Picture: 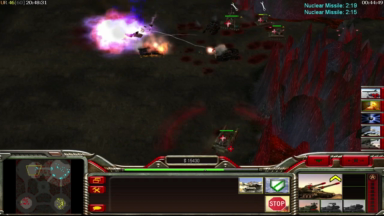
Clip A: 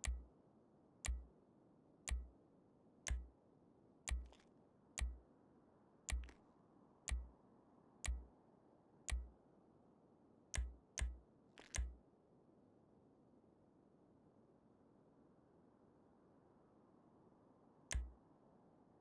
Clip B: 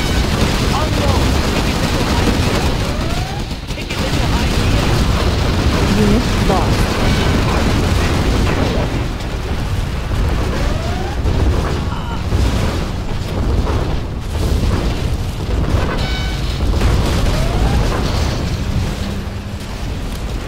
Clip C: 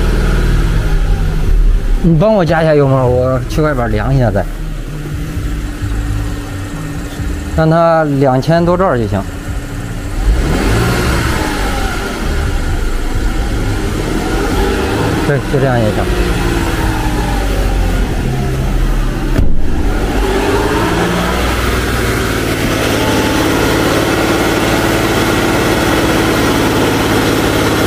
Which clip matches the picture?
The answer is B